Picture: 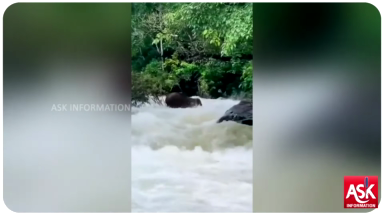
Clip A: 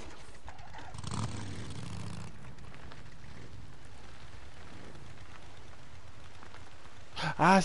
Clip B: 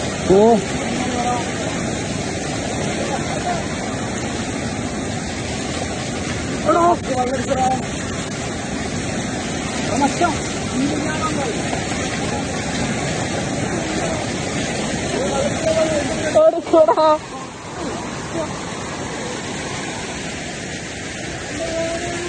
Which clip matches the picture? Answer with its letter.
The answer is B